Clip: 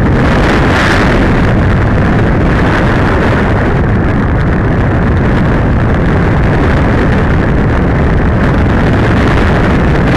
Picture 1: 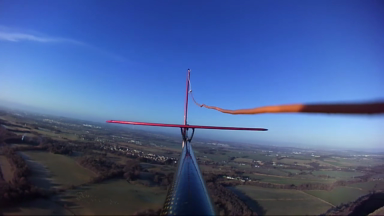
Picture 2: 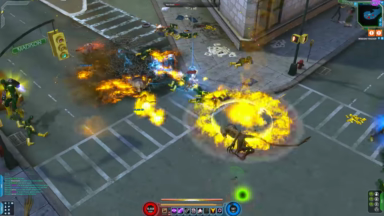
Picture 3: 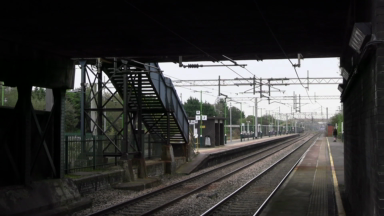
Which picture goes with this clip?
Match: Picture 1